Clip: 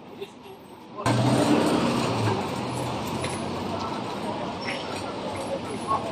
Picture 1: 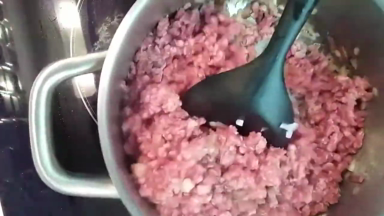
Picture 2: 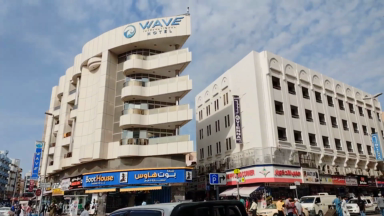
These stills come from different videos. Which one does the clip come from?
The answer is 2